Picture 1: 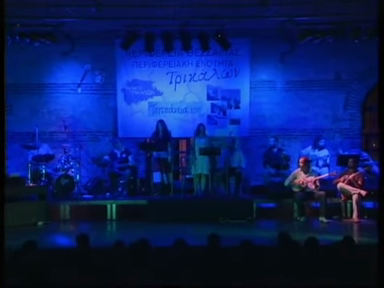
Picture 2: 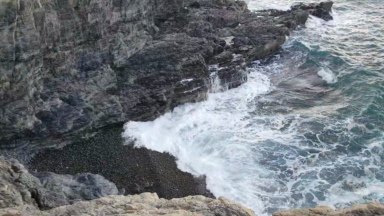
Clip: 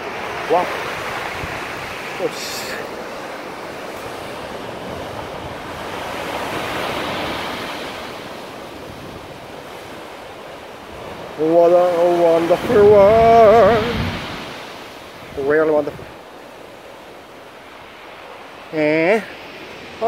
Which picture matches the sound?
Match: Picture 2